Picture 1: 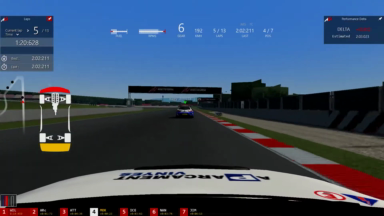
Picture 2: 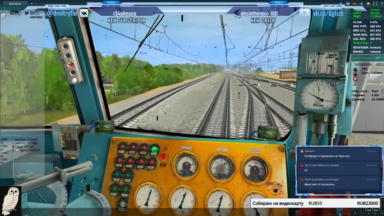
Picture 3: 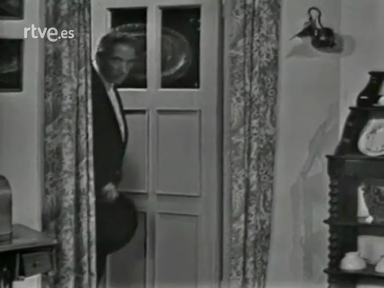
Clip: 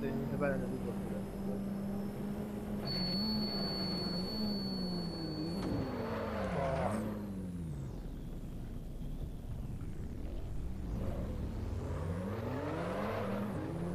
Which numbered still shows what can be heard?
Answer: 1